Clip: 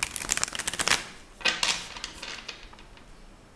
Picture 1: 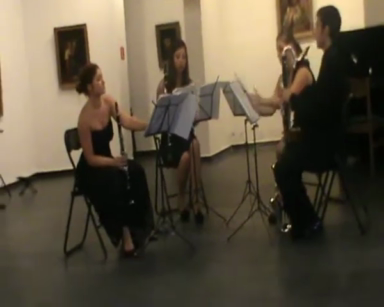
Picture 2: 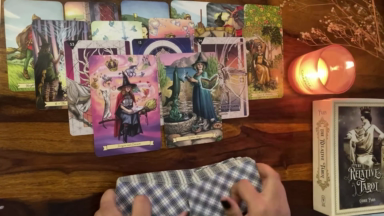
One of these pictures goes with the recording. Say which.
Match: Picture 2